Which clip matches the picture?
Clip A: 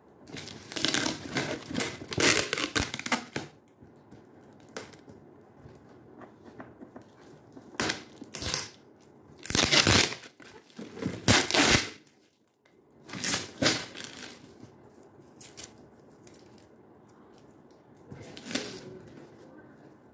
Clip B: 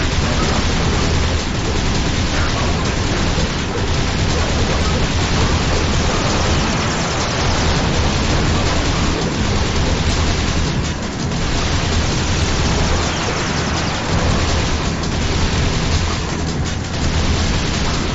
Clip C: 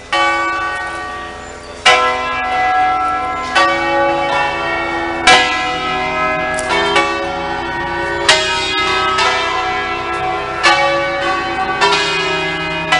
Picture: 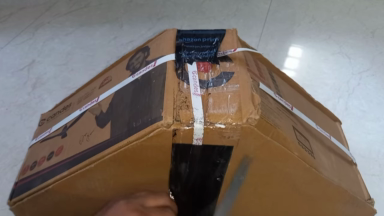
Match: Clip A